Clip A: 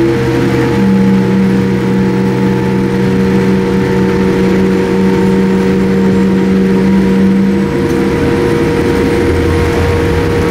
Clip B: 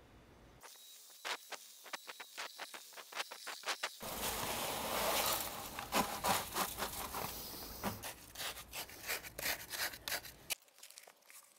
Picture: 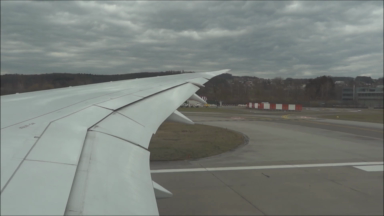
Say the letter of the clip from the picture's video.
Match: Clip A